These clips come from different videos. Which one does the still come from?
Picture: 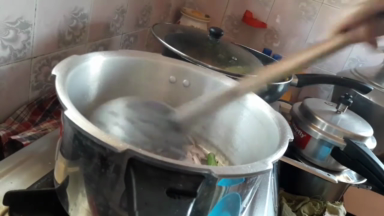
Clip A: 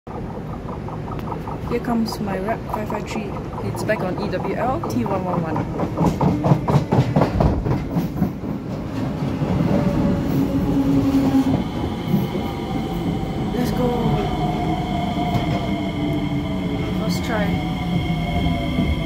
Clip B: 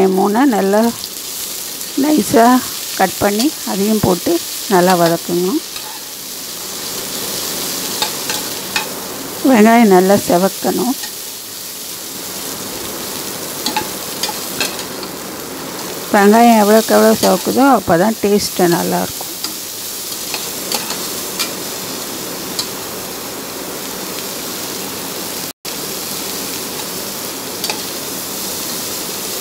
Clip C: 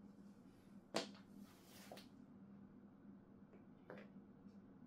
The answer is B